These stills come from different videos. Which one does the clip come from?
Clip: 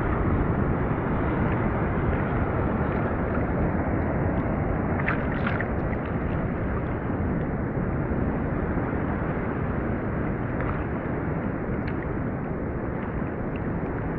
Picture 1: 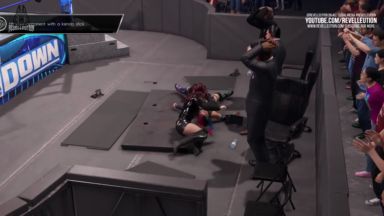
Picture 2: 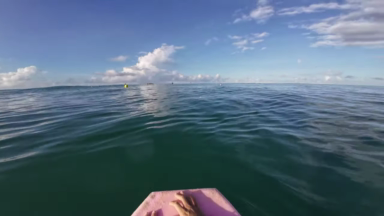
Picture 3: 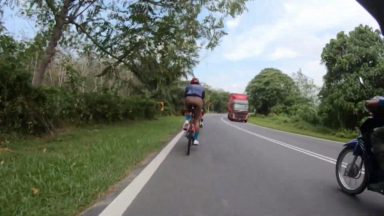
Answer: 2